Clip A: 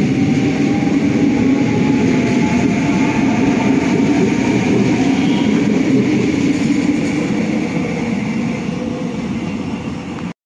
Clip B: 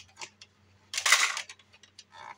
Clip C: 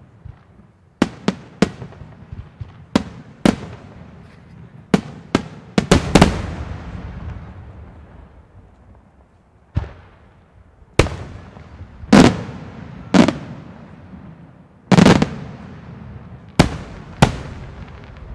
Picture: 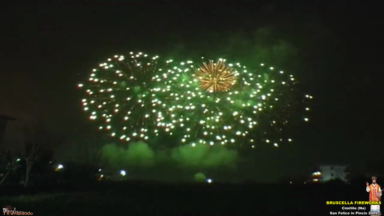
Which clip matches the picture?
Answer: C